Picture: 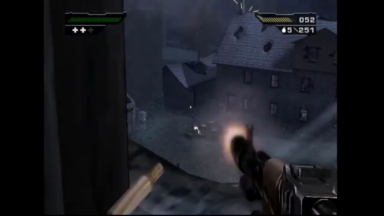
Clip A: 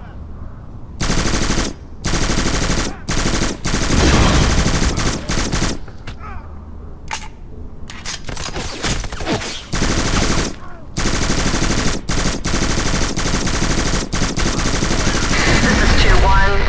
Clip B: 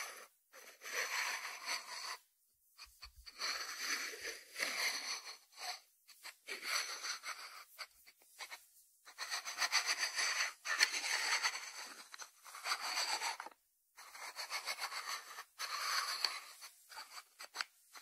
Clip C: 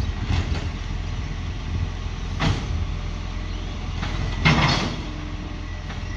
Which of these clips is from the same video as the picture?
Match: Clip A